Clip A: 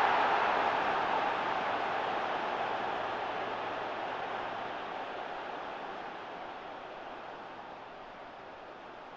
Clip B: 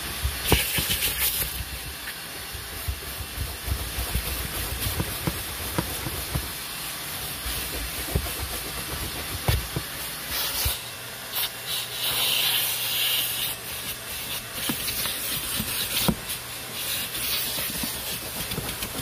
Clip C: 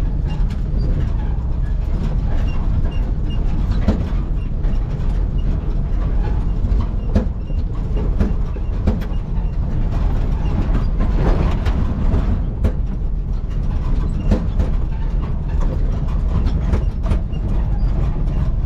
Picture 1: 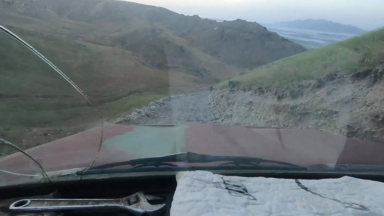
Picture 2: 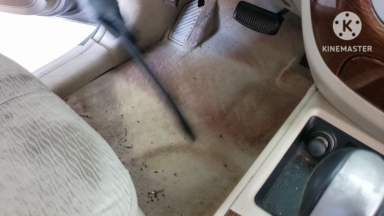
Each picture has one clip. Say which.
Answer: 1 C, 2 B